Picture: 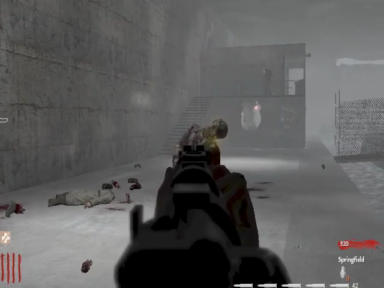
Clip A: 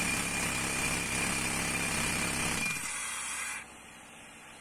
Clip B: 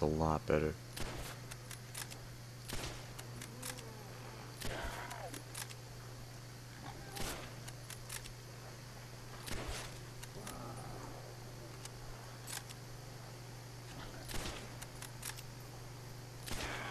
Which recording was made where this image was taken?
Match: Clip B